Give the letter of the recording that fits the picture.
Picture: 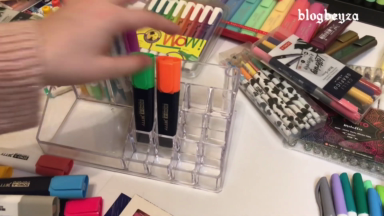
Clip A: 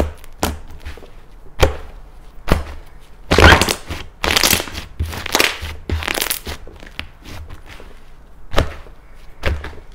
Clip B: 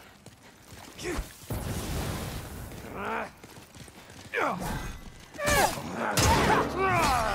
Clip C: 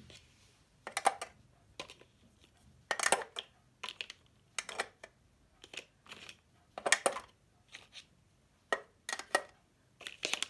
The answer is C